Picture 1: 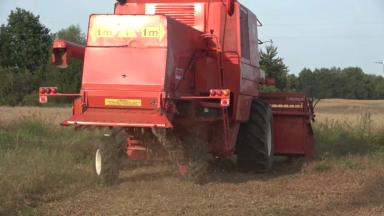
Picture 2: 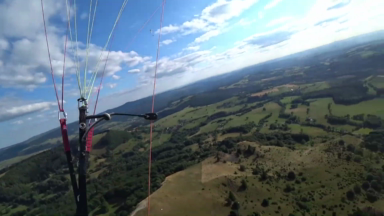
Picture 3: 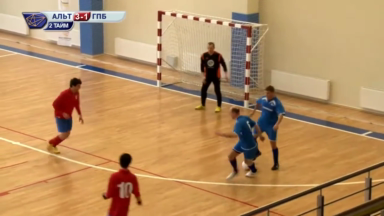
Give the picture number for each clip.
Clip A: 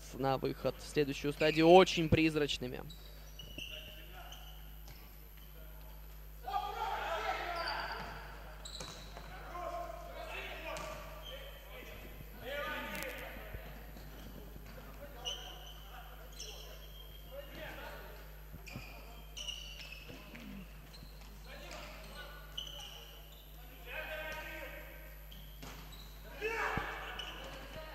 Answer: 3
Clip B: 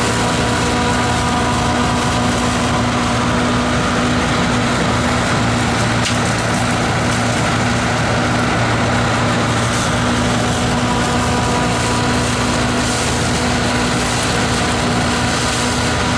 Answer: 1